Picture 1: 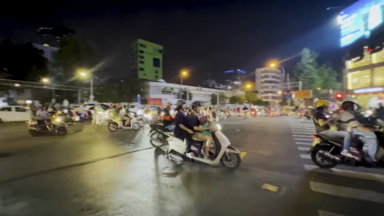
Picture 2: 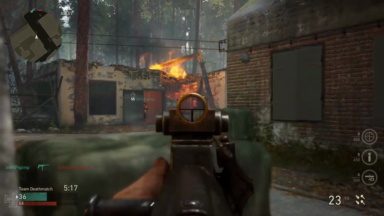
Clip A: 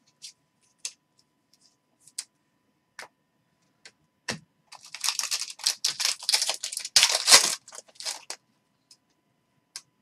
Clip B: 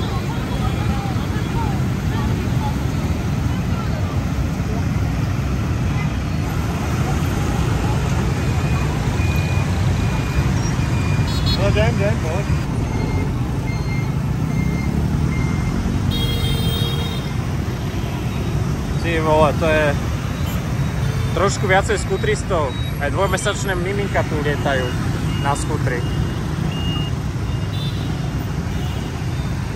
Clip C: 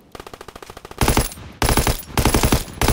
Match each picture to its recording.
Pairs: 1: B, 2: C